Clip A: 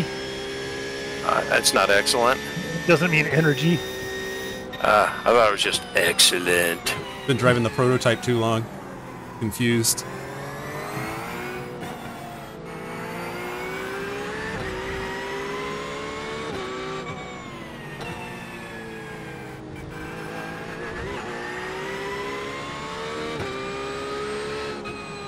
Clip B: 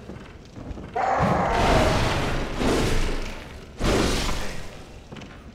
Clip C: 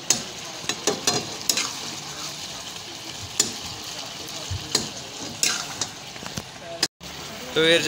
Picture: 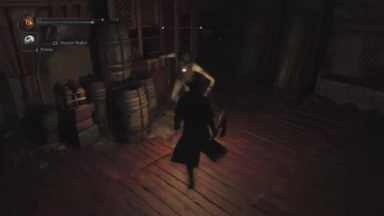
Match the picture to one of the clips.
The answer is B